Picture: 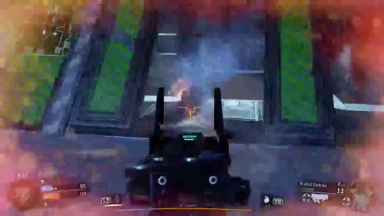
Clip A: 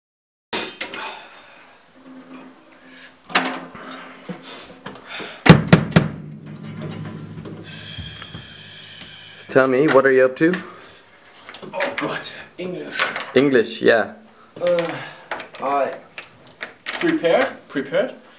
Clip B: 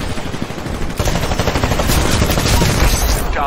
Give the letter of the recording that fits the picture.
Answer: B